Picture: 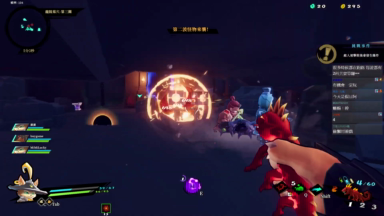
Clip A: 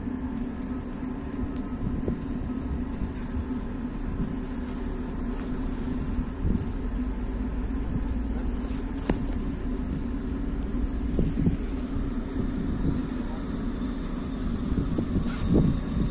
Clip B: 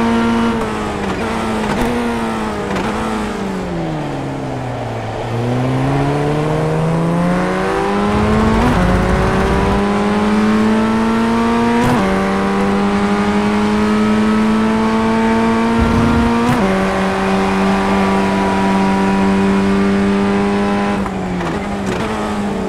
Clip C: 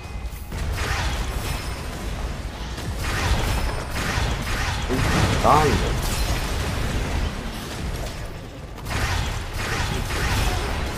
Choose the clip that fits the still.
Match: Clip C